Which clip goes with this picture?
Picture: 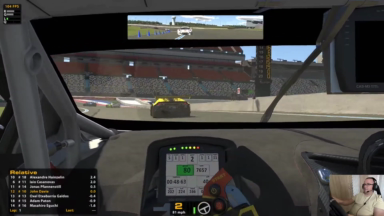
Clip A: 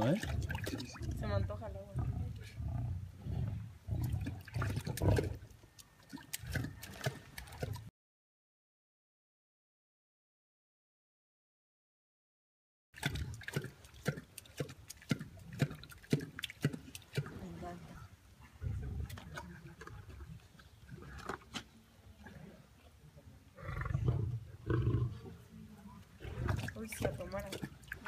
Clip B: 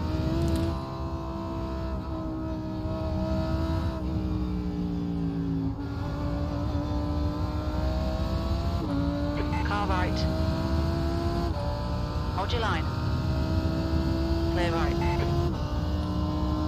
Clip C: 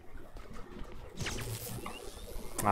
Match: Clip B